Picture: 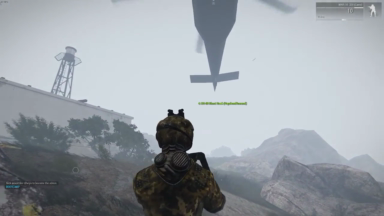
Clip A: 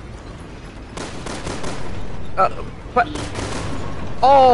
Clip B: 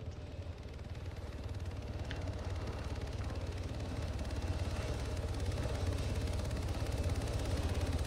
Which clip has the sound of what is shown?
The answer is B